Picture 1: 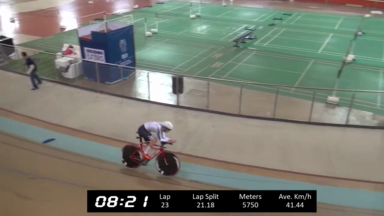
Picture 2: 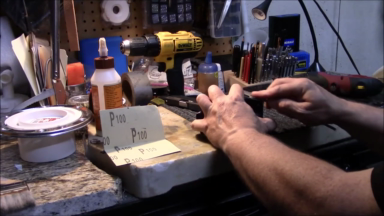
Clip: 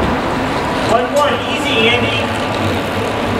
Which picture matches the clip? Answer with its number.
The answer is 1